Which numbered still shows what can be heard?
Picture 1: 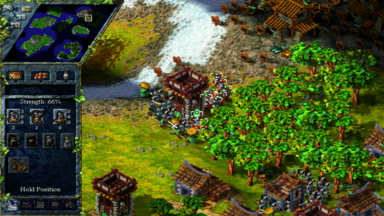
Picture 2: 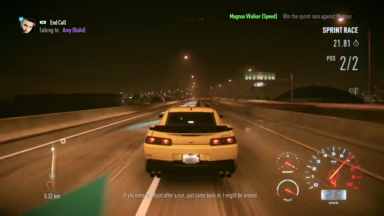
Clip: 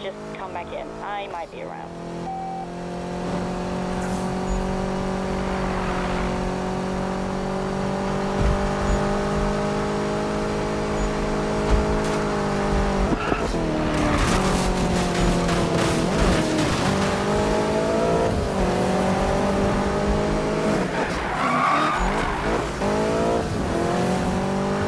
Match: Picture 2